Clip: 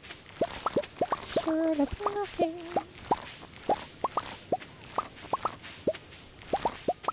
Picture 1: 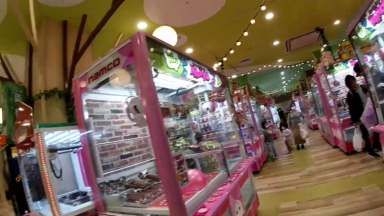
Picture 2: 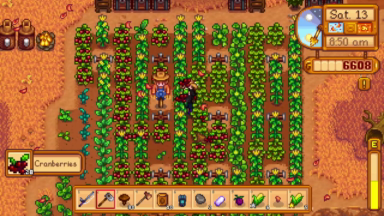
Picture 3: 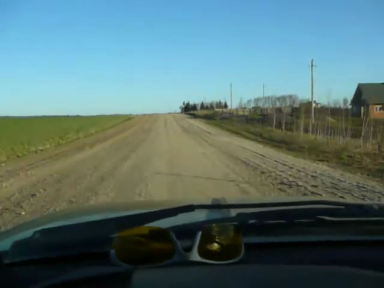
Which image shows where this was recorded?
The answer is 2